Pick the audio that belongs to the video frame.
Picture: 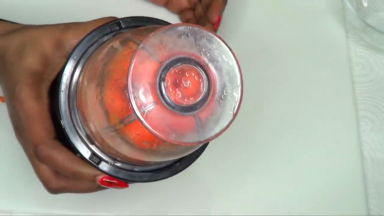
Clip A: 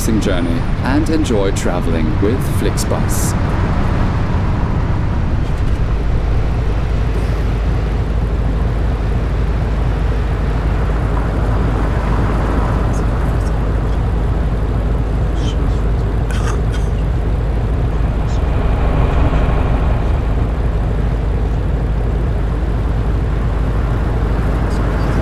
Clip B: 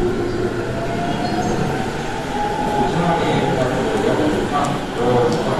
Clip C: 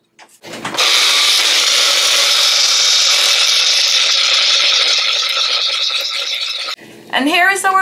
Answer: C